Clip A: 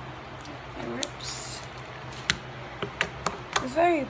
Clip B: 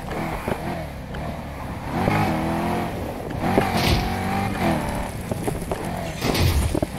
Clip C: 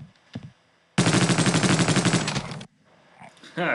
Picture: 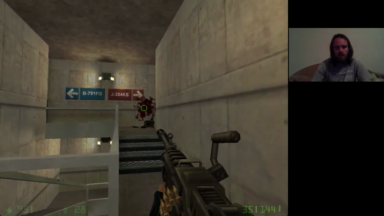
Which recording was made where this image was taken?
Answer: C